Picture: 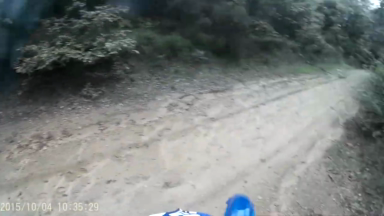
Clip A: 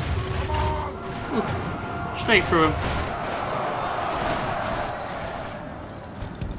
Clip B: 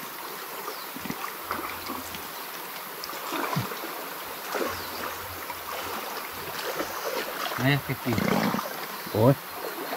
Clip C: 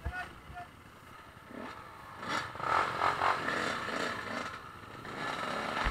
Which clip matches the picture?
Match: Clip C